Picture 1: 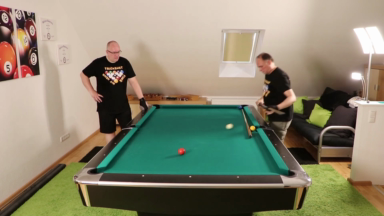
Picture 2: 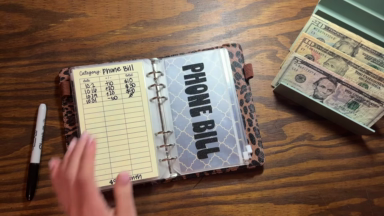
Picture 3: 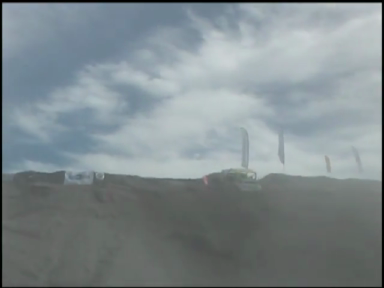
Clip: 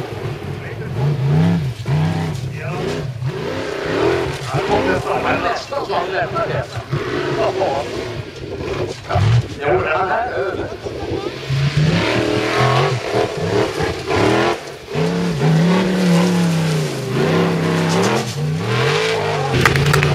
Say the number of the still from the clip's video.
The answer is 3